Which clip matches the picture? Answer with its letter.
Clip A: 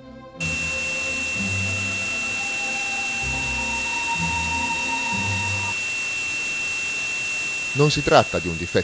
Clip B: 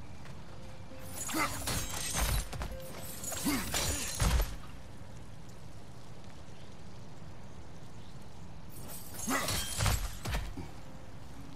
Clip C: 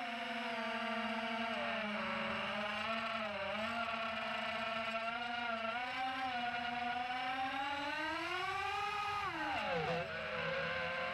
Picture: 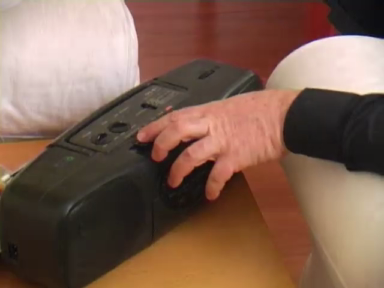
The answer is A